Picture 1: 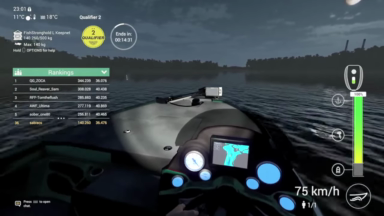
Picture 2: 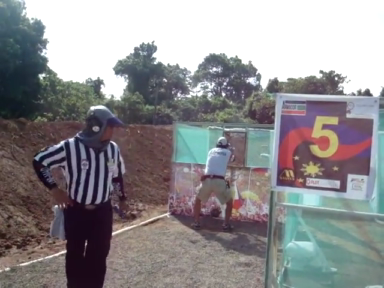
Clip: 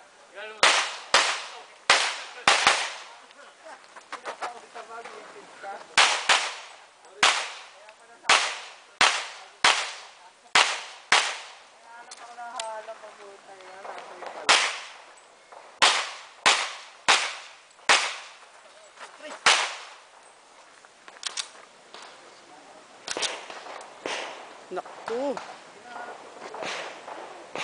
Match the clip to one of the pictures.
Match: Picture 2